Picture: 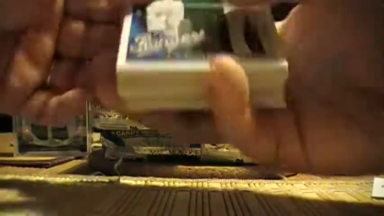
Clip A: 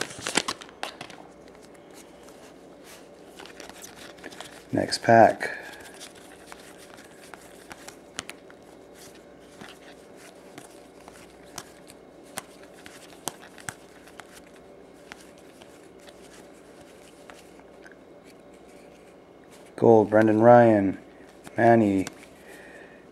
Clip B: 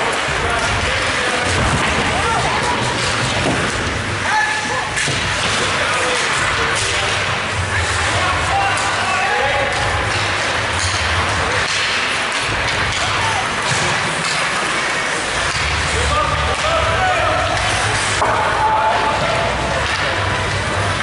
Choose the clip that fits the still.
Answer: A